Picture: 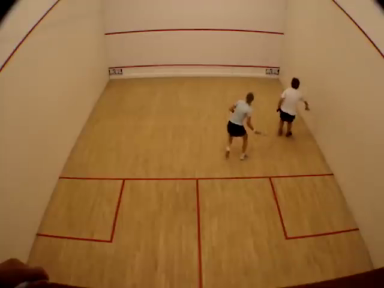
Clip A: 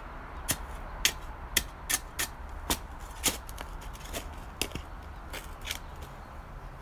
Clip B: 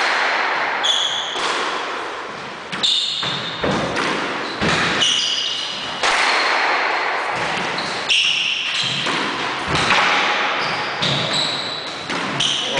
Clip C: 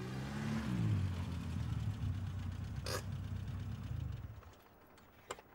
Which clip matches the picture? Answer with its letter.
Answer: B